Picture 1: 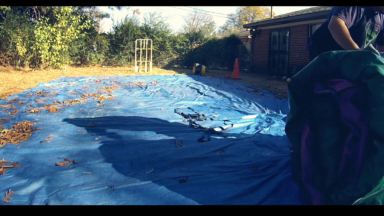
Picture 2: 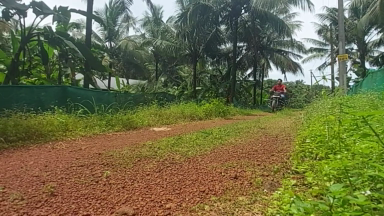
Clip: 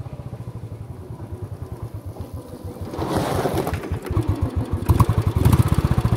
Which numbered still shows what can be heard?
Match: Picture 2